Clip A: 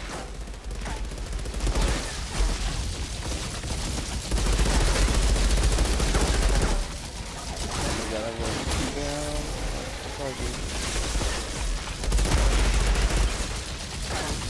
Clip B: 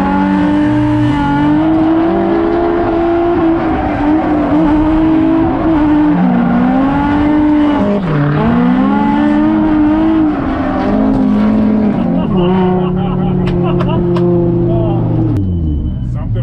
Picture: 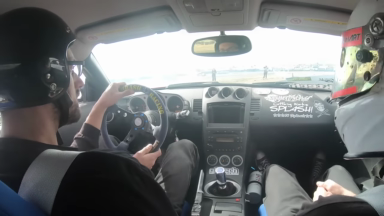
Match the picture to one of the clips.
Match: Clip B